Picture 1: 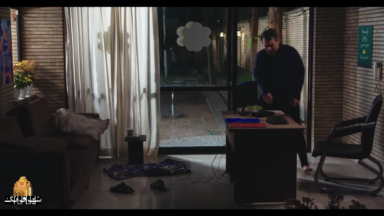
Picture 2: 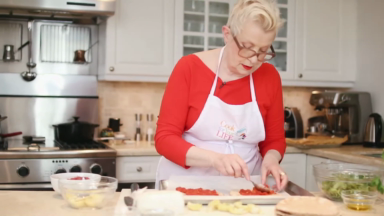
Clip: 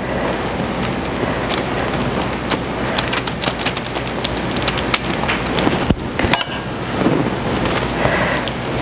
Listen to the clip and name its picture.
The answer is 2